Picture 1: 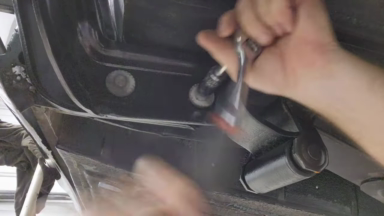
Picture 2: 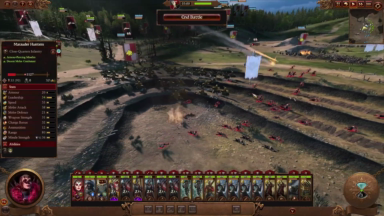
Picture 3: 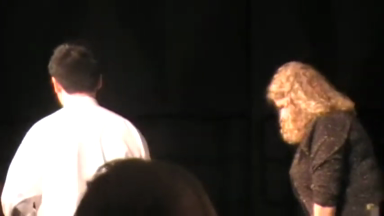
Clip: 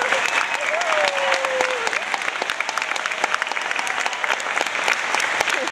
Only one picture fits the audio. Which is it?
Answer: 3